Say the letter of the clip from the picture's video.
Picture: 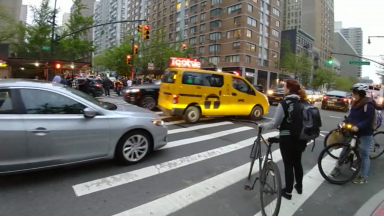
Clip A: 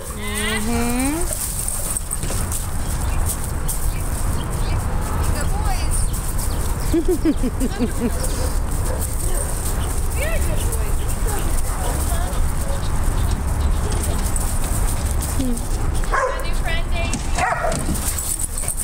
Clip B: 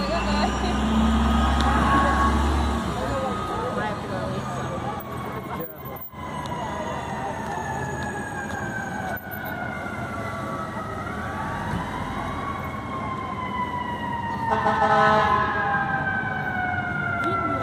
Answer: B